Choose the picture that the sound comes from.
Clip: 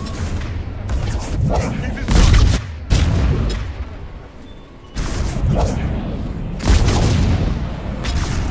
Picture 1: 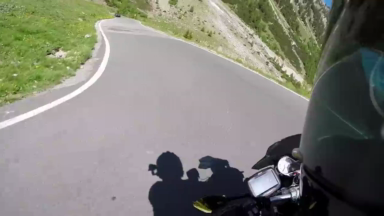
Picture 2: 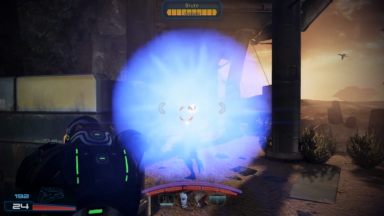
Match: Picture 2